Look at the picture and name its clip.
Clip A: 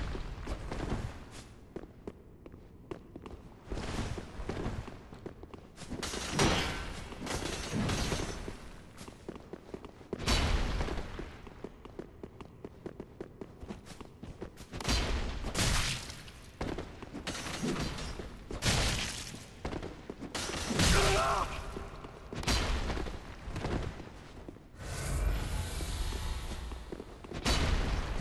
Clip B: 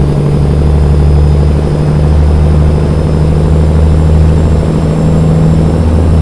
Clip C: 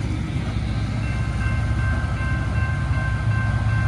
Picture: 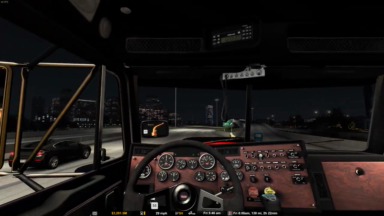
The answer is B